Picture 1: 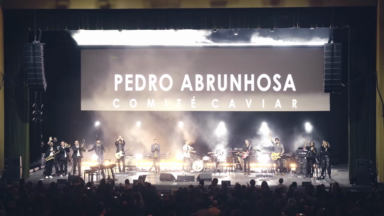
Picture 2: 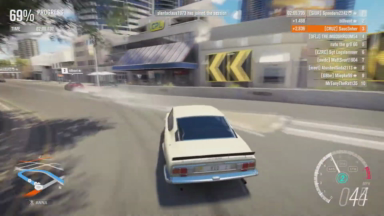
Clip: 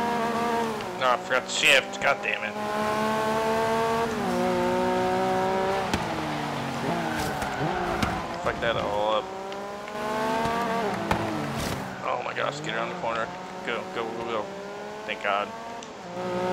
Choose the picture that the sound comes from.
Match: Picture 2